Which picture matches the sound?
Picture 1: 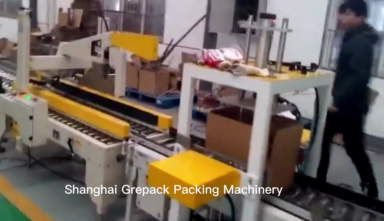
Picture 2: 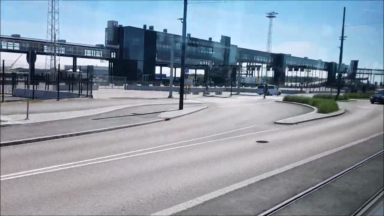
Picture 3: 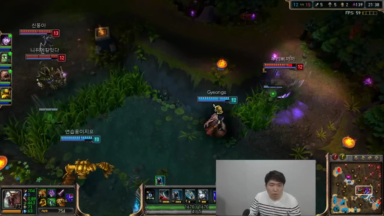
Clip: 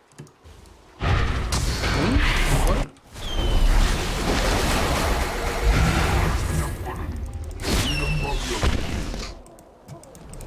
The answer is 3